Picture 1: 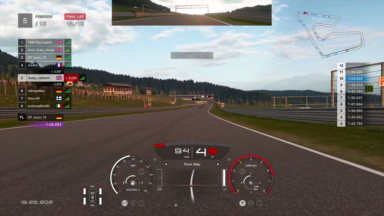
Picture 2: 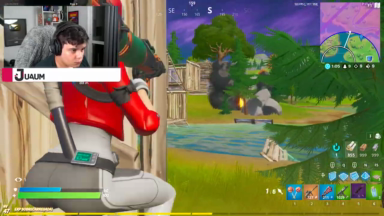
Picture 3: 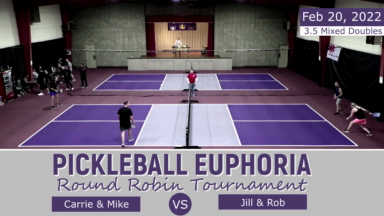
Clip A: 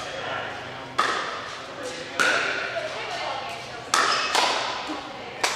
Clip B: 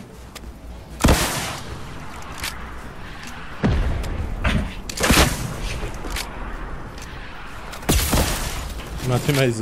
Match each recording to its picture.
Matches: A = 3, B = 2